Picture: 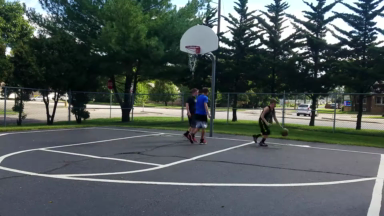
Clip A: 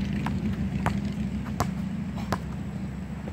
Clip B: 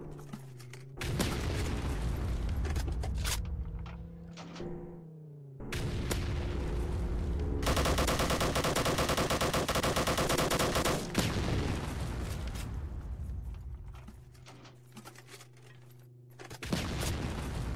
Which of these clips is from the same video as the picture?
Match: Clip A